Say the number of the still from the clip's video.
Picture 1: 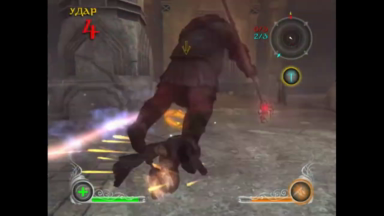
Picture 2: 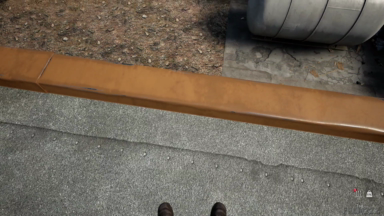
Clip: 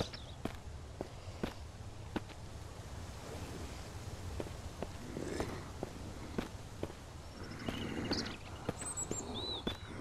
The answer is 2